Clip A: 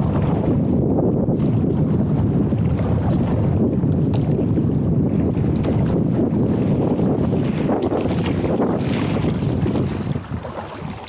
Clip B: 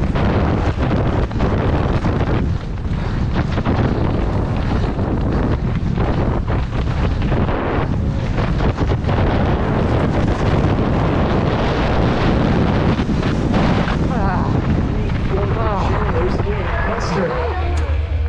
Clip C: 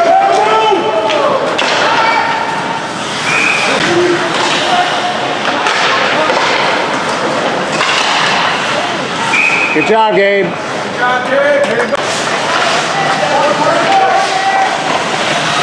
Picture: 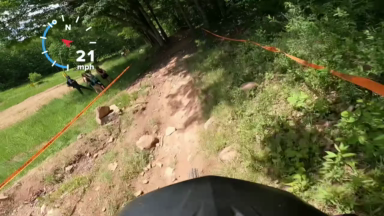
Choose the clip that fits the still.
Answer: B